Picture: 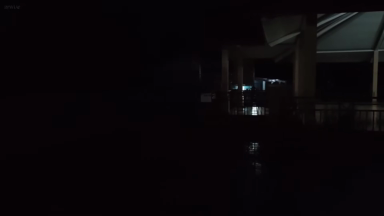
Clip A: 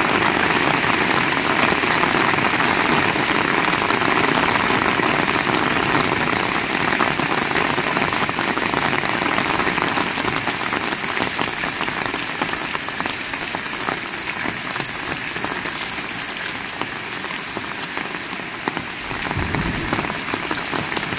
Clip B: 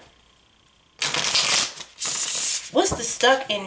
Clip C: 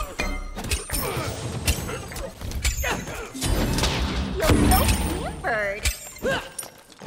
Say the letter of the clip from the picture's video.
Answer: A